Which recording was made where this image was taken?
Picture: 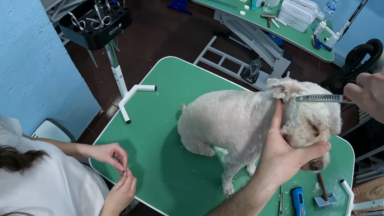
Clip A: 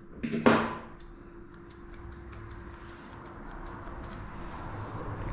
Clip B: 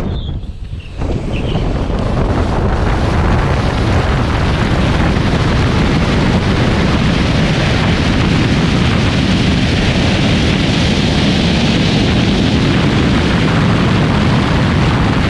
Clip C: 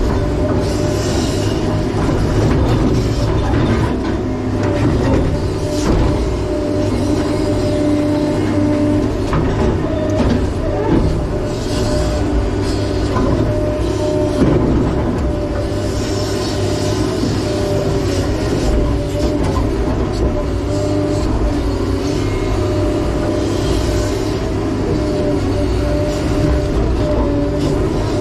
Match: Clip A